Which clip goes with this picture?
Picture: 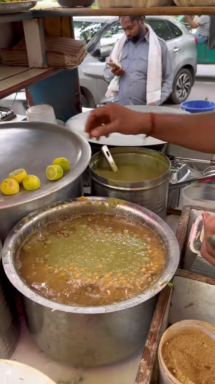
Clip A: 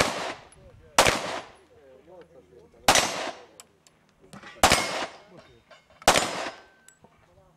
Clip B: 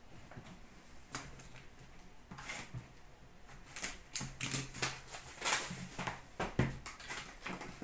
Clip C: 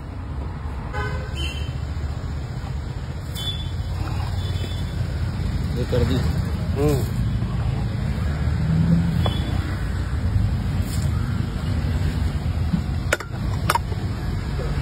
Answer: C